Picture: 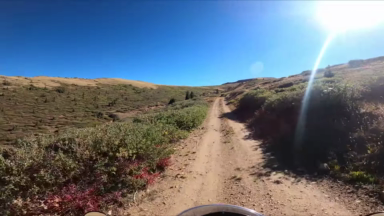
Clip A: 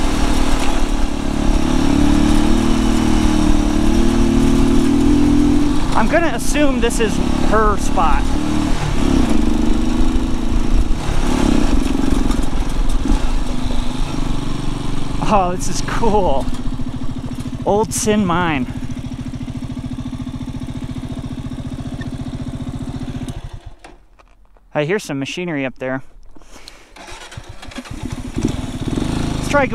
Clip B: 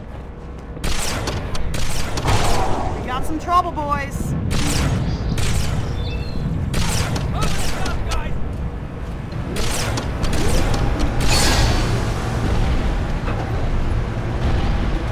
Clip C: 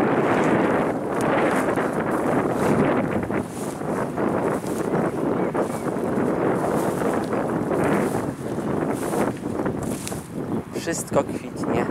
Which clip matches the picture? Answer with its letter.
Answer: A